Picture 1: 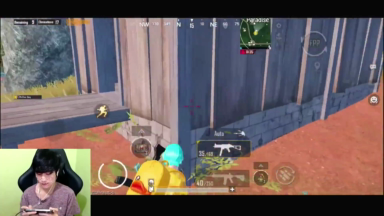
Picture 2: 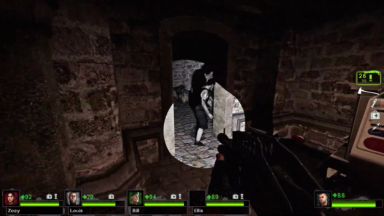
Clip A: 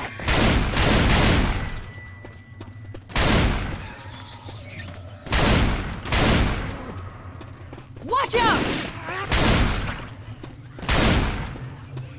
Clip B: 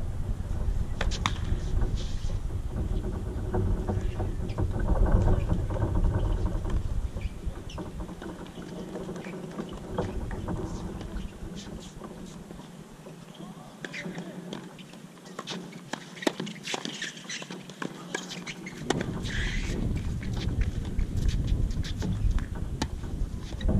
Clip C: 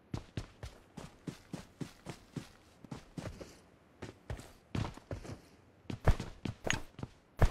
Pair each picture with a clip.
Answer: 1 C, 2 A